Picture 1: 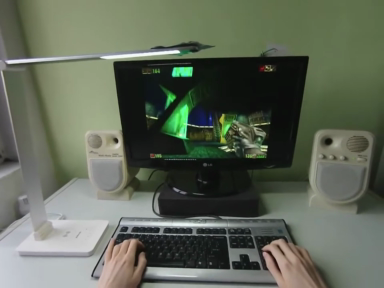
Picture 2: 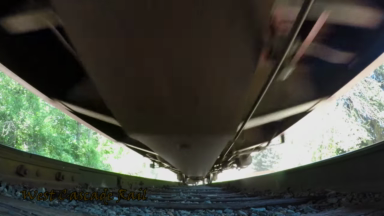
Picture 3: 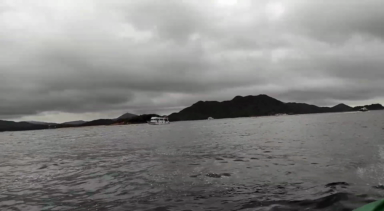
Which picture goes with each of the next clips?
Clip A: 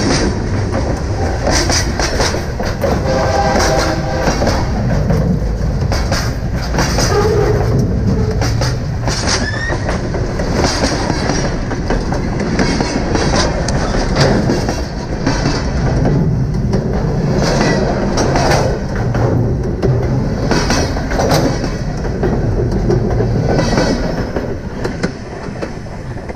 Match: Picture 2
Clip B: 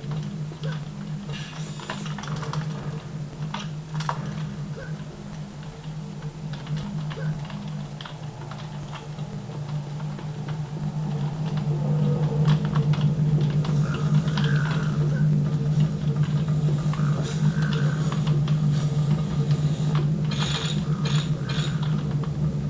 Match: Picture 1